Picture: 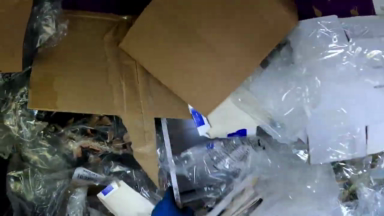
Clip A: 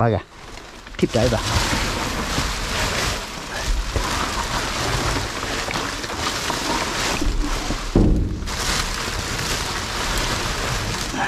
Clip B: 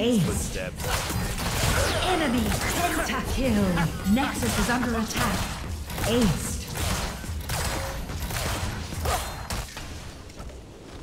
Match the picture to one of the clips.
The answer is A